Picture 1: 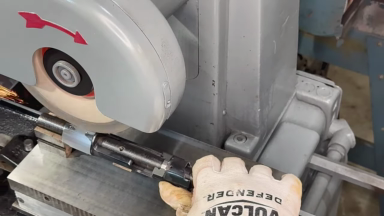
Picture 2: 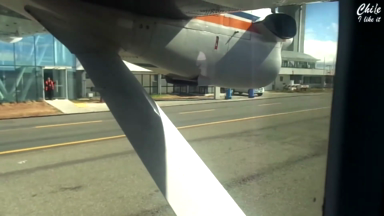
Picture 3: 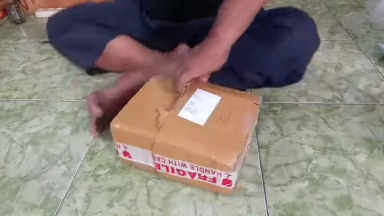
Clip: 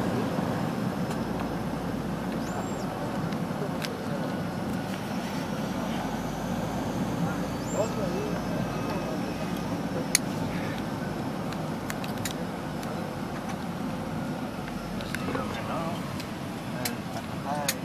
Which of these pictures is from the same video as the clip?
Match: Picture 2